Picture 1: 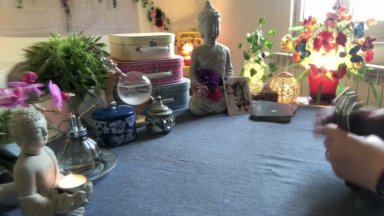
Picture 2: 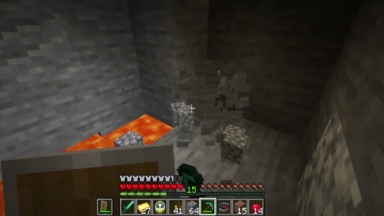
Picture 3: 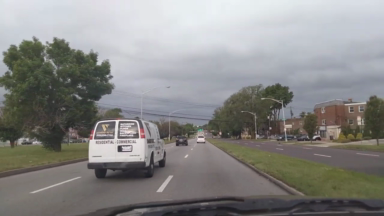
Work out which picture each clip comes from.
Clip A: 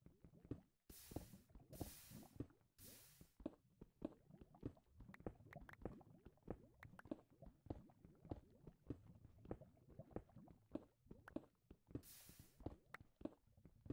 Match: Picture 2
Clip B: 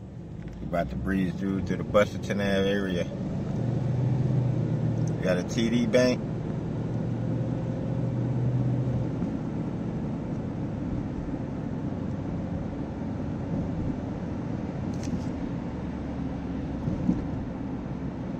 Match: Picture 3